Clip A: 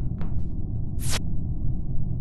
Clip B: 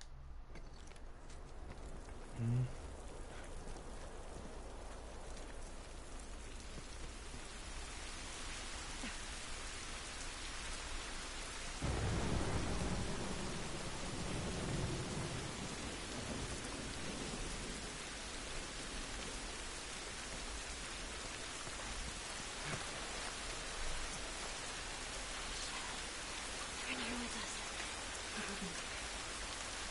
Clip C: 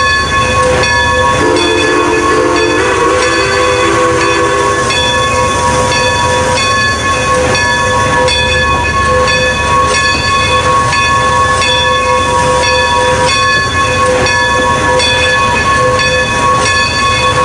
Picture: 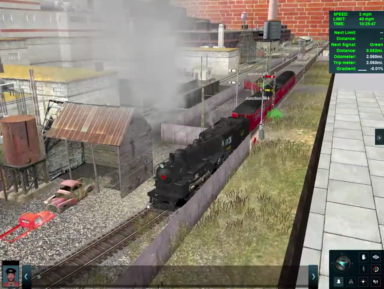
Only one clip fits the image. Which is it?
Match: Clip C